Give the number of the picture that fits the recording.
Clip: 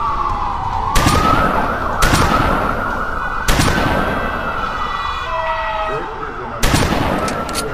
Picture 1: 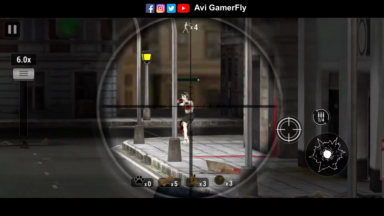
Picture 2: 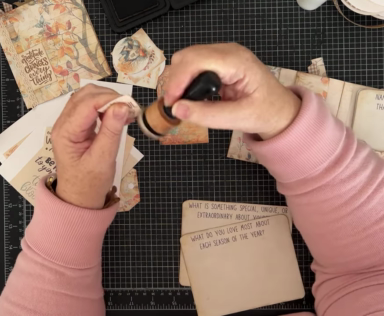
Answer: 1